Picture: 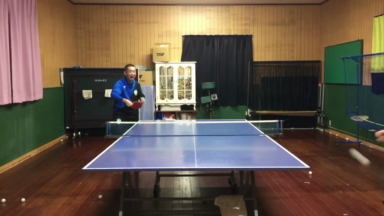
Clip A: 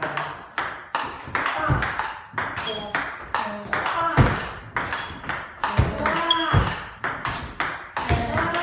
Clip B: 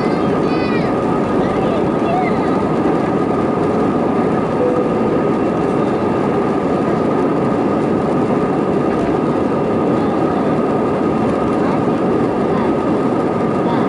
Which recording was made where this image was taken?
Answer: A